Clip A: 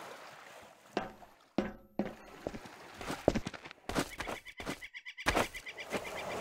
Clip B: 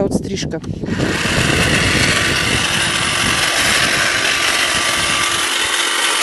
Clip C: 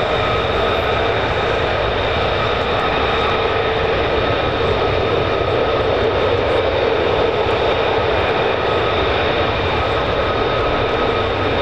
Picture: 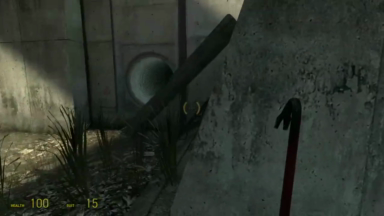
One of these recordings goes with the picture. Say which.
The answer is A